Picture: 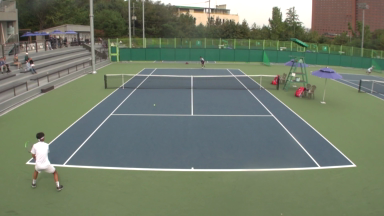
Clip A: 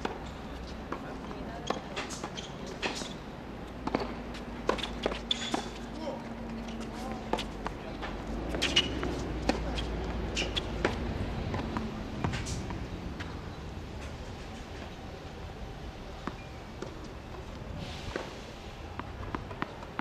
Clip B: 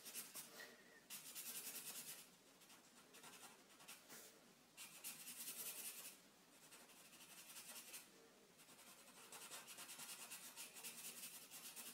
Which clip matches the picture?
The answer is A